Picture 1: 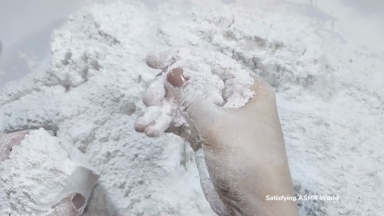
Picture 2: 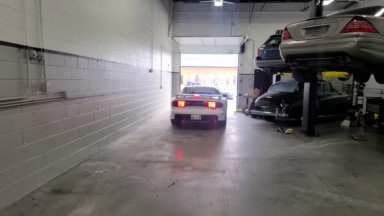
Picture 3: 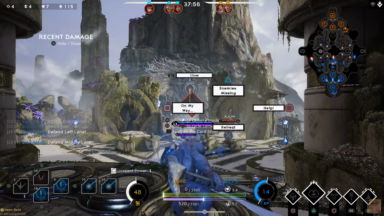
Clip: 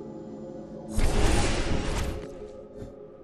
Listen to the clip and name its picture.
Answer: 3